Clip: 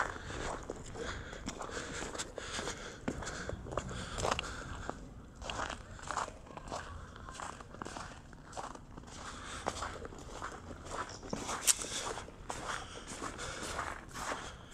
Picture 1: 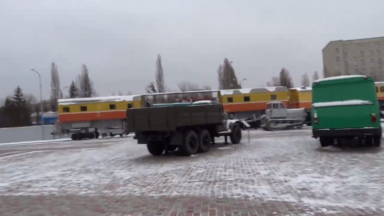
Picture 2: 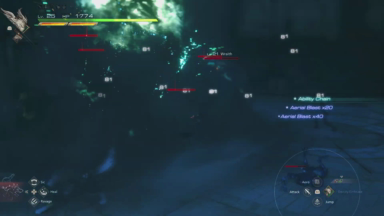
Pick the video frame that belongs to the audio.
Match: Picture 1